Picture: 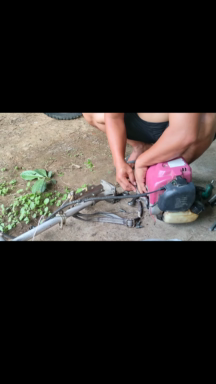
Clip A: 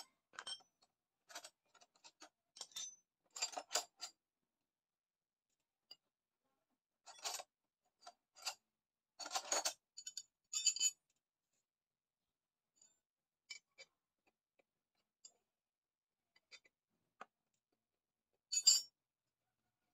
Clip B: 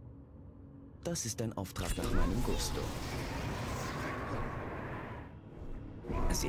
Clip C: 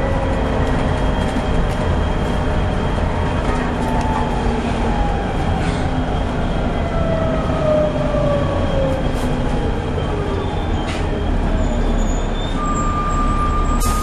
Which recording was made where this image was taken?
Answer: A